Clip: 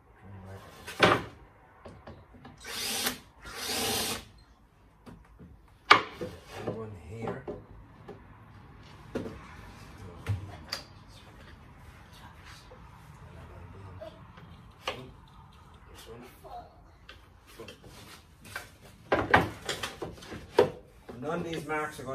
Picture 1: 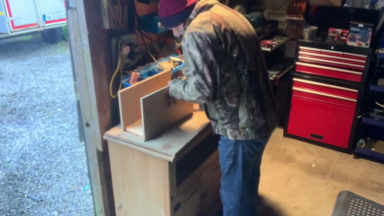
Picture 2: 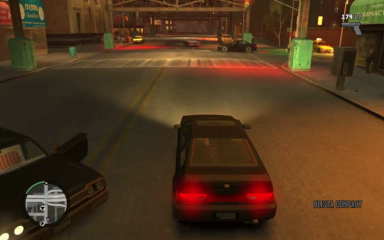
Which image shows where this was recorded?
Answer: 1